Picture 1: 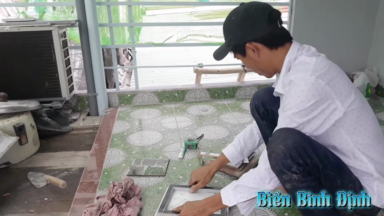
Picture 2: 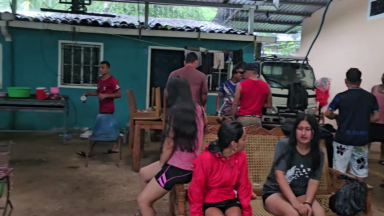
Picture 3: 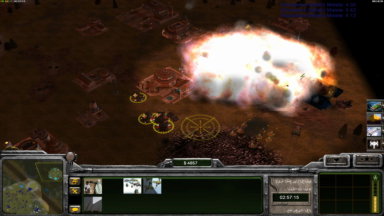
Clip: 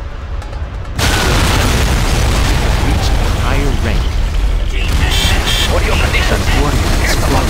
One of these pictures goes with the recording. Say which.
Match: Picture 3